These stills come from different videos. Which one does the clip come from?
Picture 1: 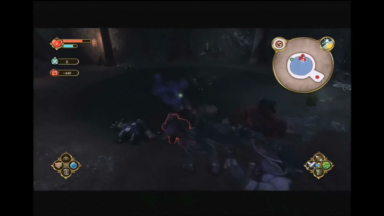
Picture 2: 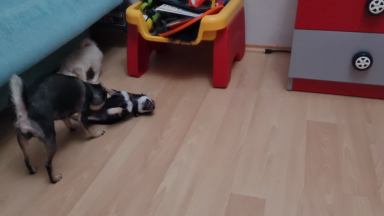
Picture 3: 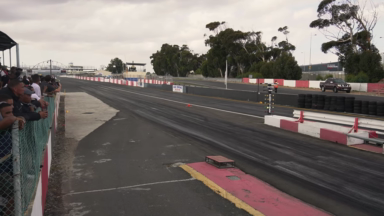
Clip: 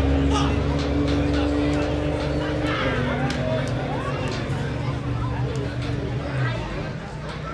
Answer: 3